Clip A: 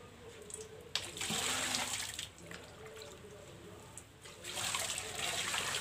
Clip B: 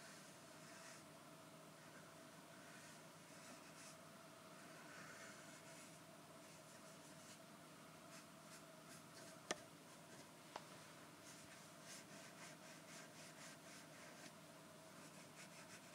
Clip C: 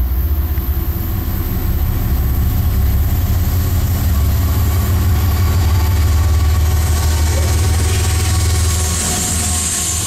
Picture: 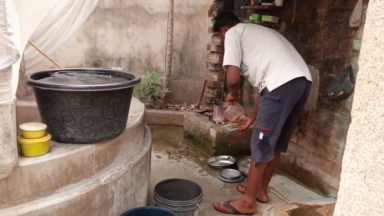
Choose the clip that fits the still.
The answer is A